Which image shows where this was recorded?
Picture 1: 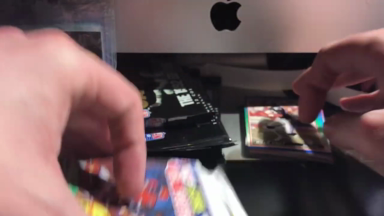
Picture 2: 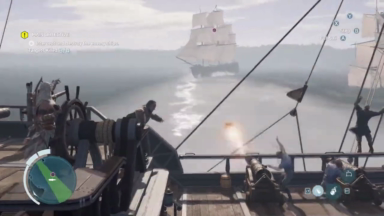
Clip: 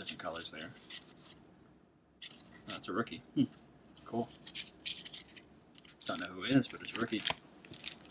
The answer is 1